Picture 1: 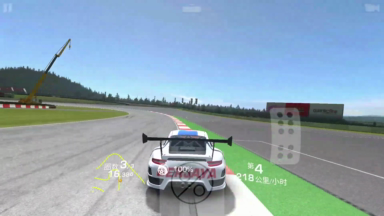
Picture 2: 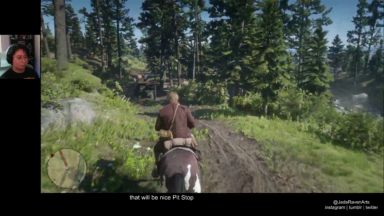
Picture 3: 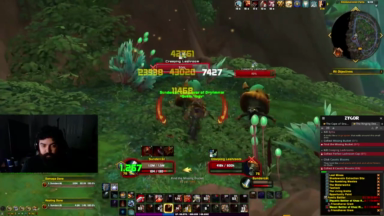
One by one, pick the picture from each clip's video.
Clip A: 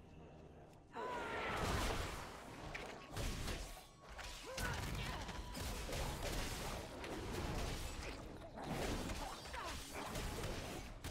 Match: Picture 3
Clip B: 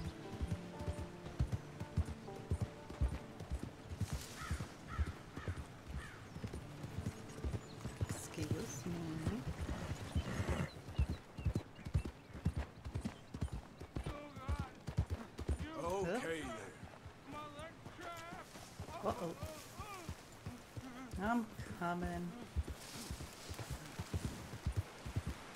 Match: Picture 2